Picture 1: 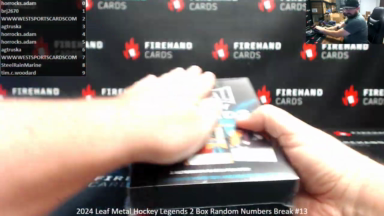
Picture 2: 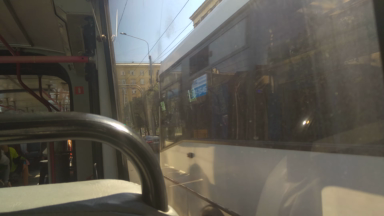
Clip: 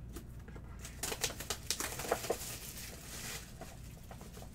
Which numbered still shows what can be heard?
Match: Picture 1